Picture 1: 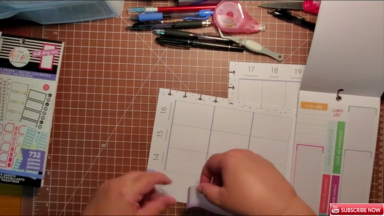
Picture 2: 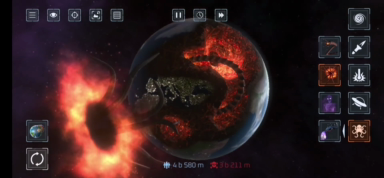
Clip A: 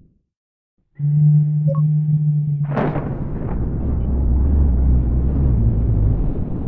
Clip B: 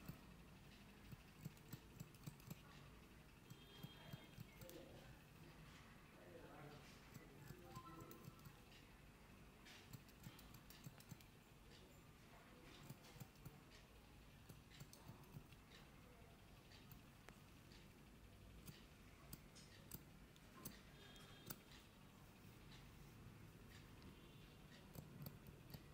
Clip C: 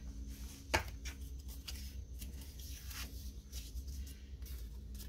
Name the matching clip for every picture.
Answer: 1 C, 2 A